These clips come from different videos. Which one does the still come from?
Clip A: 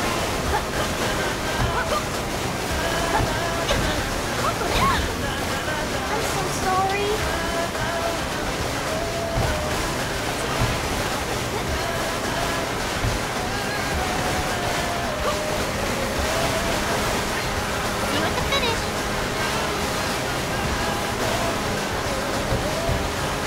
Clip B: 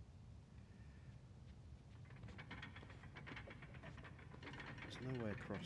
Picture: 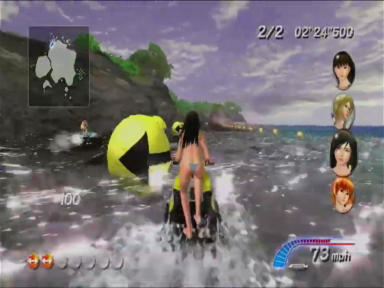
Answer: A